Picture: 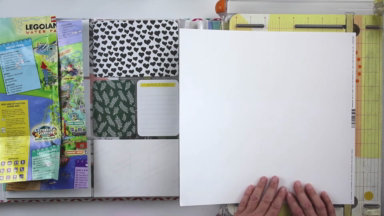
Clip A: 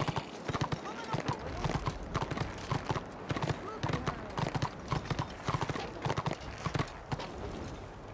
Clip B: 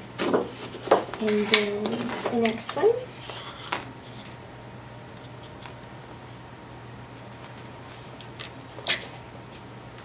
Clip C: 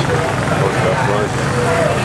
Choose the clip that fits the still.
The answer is B